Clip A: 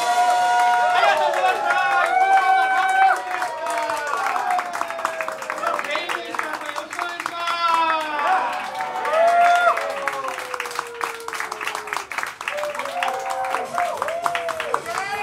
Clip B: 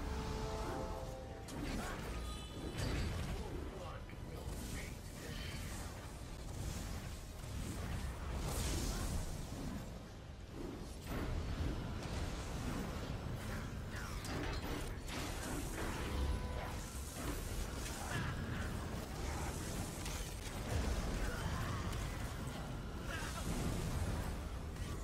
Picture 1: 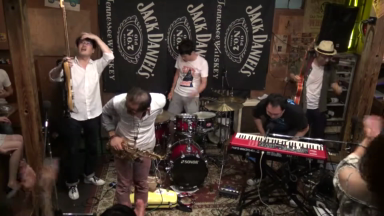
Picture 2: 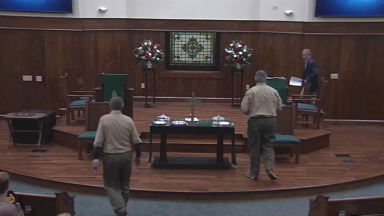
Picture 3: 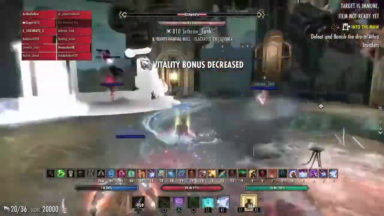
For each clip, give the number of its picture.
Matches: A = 1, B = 3